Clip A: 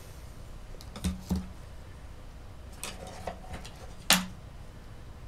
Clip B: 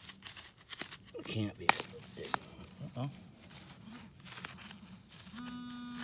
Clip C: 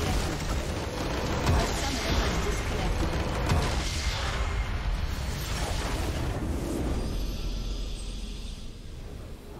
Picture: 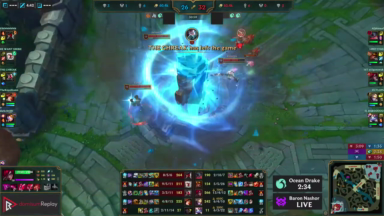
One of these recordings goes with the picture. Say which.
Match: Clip C